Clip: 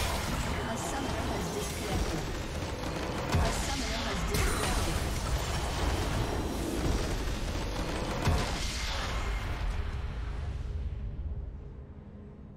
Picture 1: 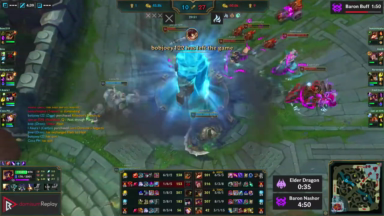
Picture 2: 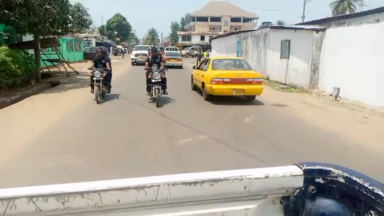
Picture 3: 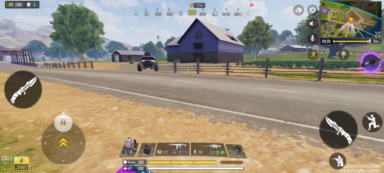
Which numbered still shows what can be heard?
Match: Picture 1